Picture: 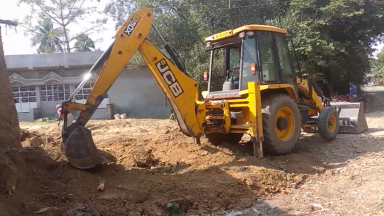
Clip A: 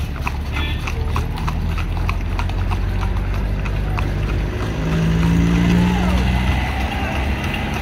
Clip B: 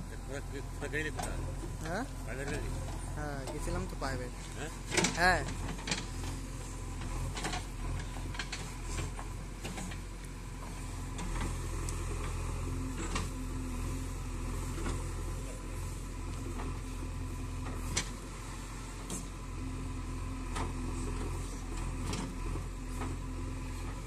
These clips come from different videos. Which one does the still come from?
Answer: B